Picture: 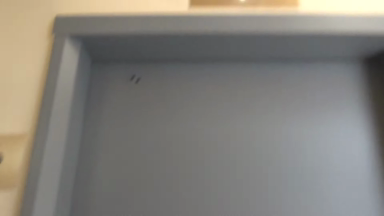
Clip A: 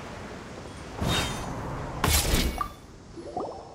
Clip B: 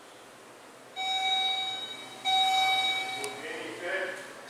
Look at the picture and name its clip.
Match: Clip B